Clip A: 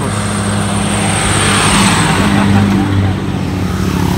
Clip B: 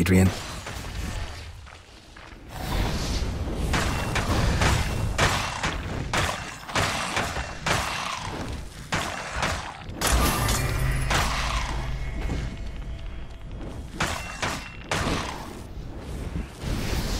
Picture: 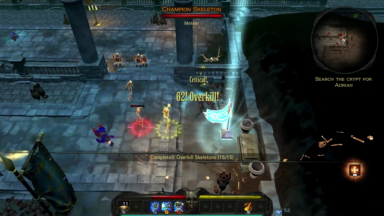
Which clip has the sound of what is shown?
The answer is B